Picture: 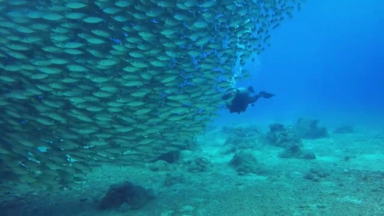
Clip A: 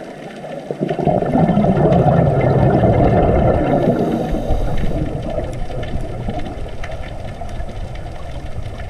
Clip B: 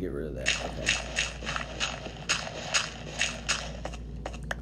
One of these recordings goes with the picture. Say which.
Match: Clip A